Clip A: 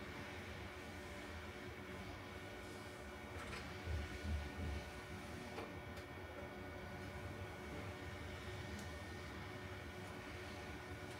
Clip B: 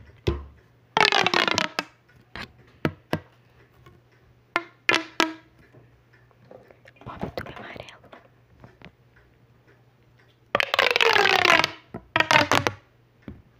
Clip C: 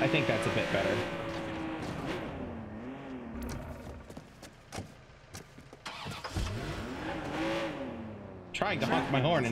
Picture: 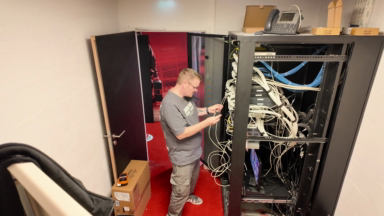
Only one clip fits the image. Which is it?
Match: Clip A